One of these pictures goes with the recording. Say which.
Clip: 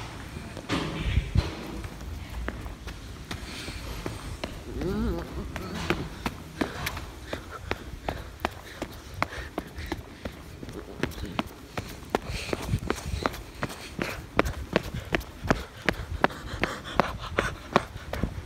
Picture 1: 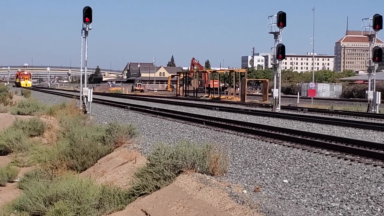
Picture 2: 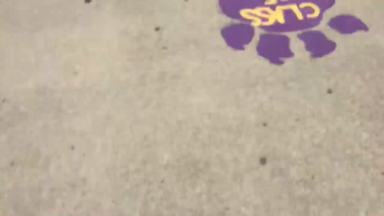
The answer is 2